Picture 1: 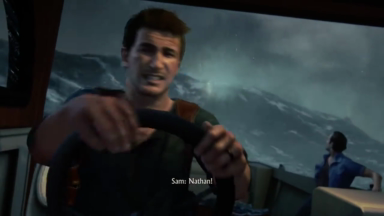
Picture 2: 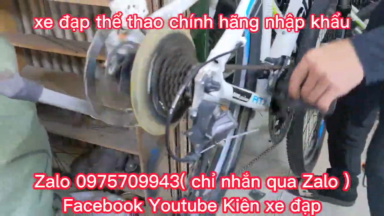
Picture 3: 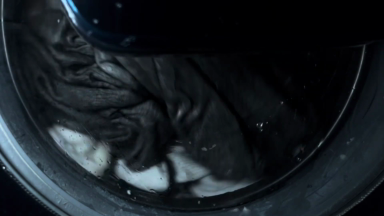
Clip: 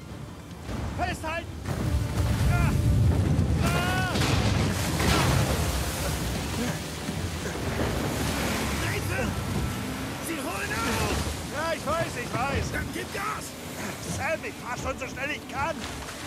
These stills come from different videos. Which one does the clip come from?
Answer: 1